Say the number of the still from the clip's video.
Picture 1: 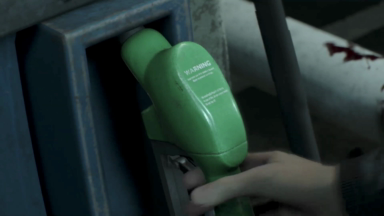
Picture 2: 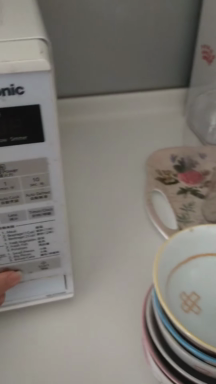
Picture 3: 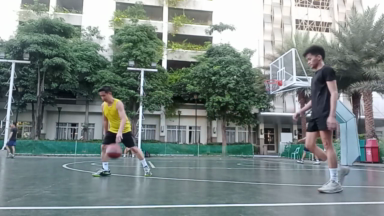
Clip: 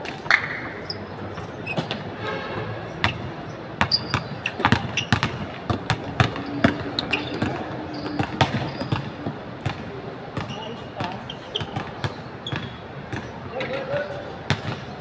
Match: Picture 3